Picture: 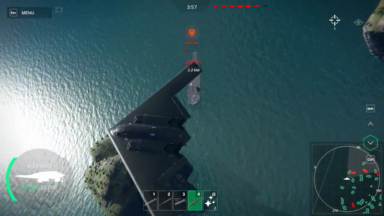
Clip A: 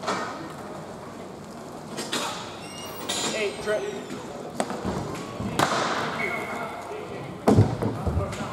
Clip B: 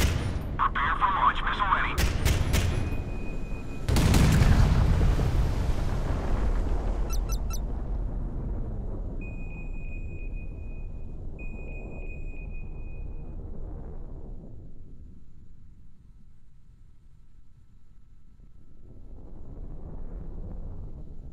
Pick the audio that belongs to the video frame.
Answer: B